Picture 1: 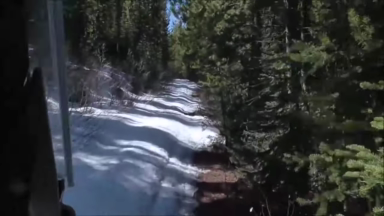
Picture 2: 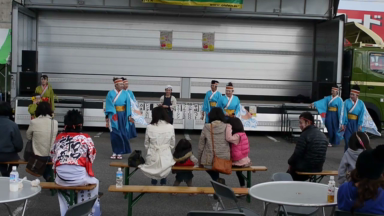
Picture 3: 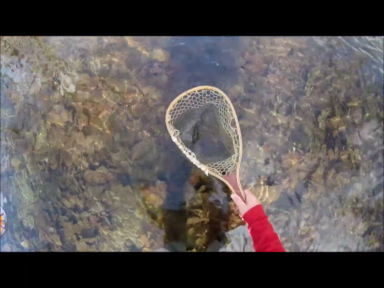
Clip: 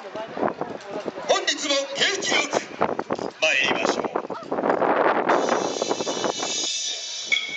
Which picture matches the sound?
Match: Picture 2